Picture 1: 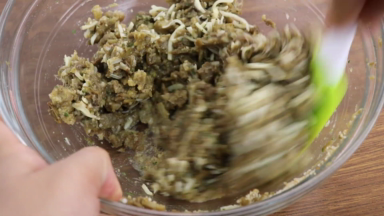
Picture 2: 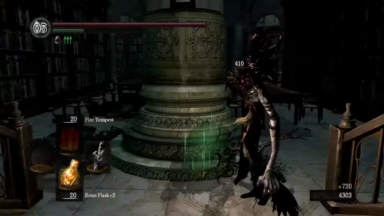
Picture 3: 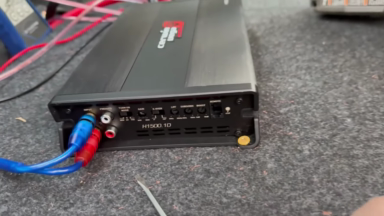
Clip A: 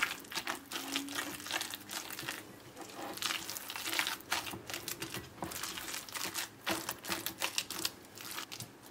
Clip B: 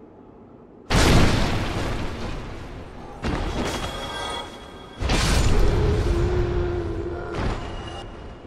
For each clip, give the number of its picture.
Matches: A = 1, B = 2